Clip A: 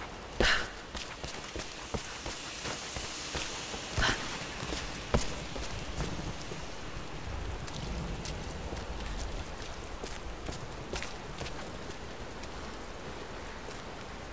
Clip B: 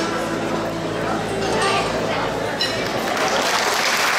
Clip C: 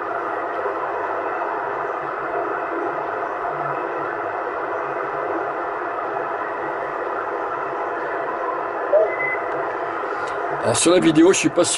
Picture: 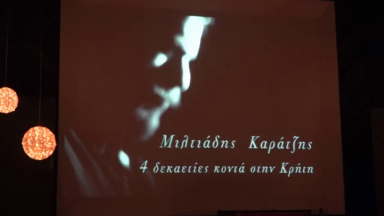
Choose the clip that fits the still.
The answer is B